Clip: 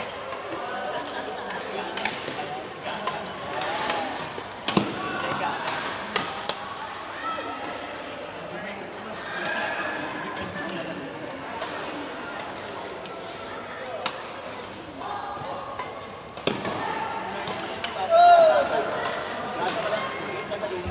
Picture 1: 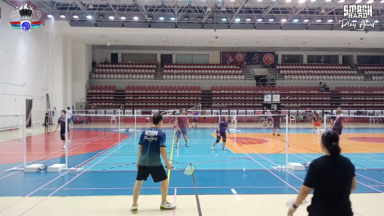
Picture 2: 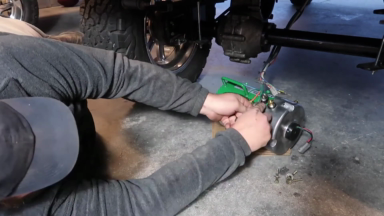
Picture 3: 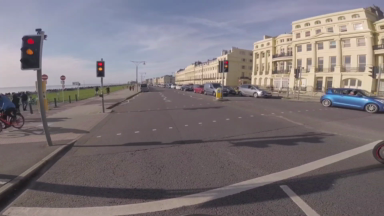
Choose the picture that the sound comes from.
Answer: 1